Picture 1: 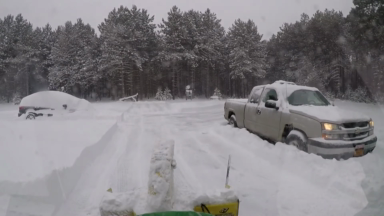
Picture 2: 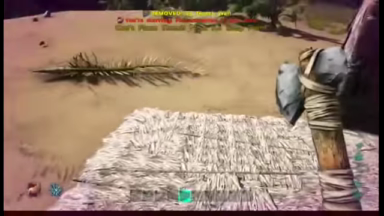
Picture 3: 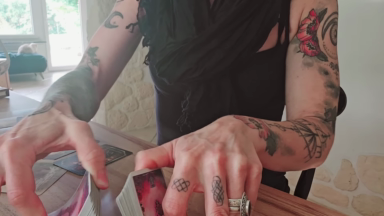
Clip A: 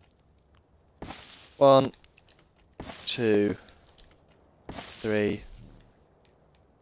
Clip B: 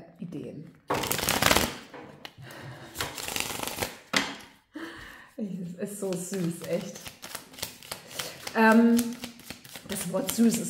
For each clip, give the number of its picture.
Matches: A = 2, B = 3